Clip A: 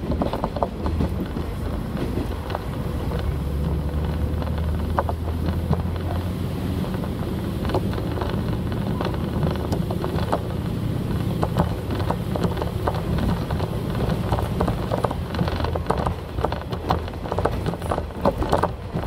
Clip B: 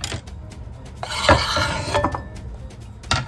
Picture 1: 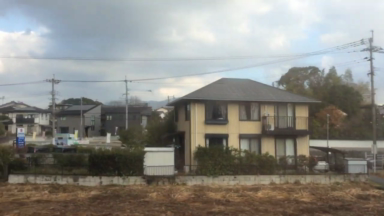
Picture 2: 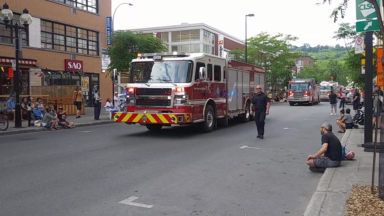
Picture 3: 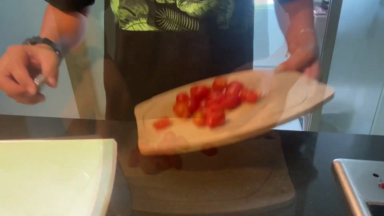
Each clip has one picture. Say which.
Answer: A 1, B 3